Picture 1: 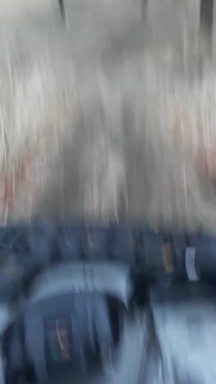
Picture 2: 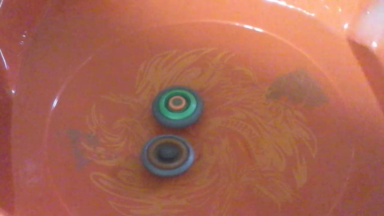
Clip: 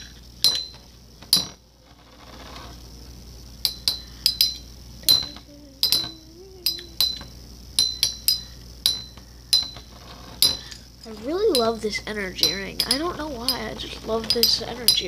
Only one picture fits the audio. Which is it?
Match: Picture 2